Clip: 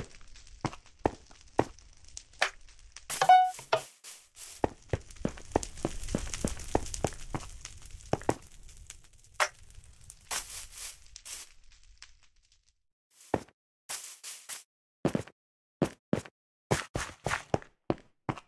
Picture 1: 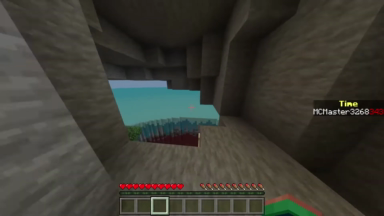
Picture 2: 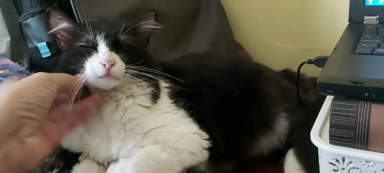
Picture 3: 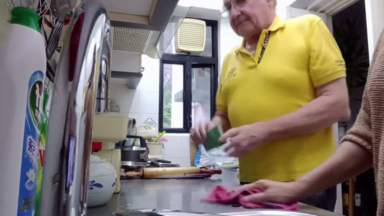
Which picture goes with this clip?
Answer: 1